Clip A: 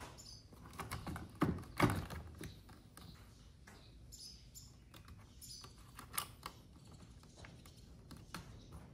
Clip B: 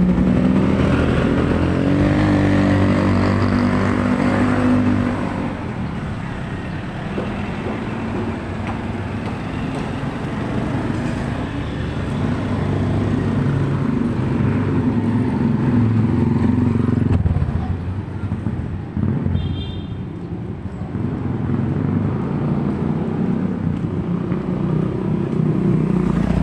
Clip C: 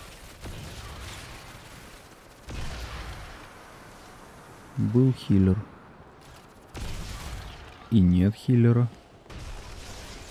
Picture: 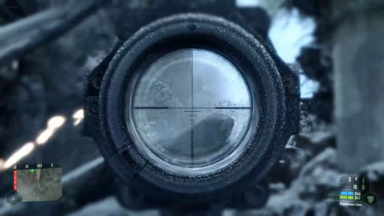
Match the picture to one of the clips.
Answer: C